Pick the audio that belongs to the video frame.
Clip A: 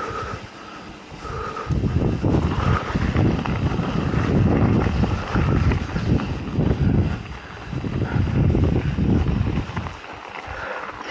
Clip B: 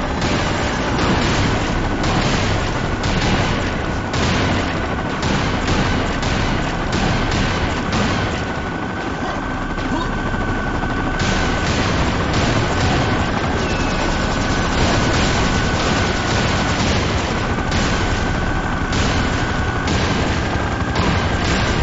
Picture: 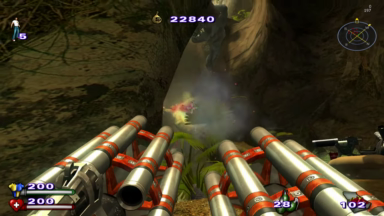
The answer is B